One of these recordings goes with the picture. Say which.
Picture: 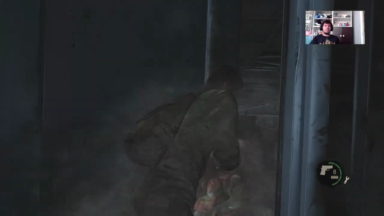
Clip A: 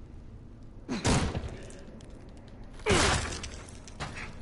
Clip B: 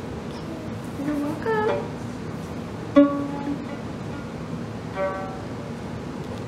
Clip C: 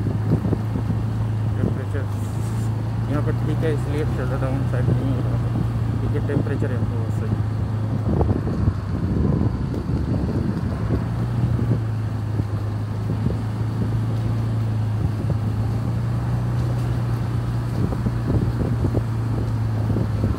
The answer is A